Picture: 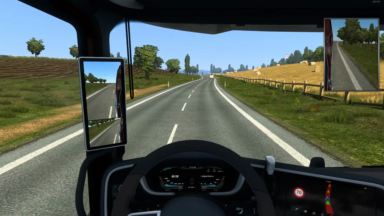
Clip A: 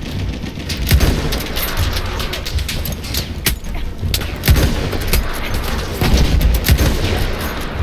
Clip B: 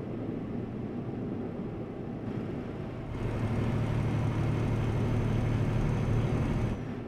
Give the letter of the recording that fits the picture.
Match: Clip B